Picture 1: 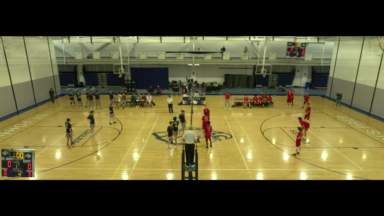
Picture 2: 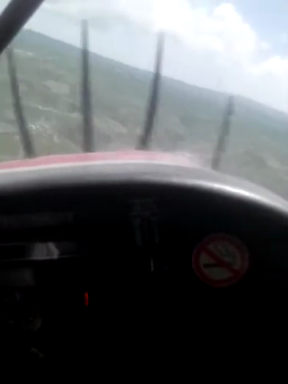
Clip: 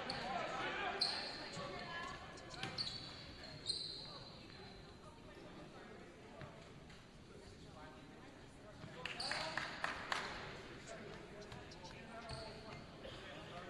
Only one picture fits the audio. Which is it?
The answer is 1